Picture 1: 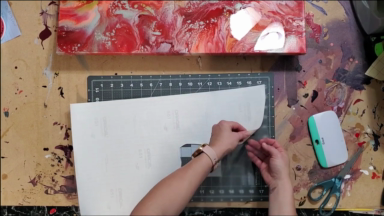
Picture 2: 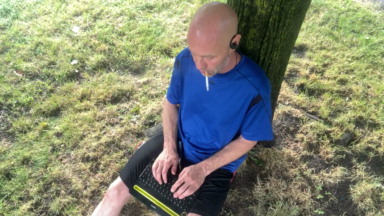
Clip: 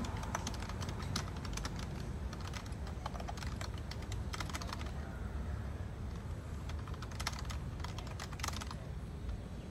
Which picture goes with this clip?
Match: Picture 2